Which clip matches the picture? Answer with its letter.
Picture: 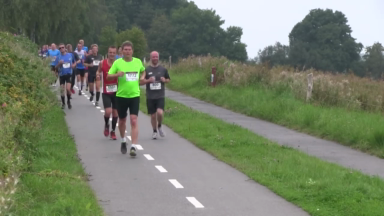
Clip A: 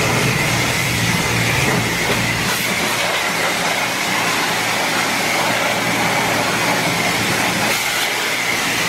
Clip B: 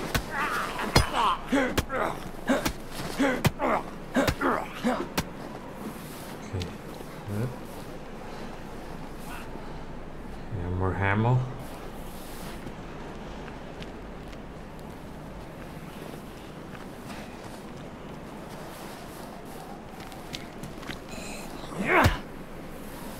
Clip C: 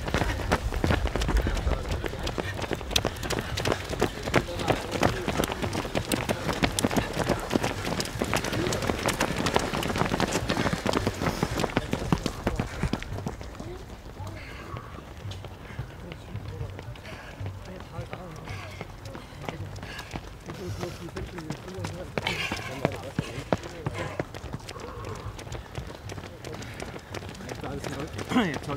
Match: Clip C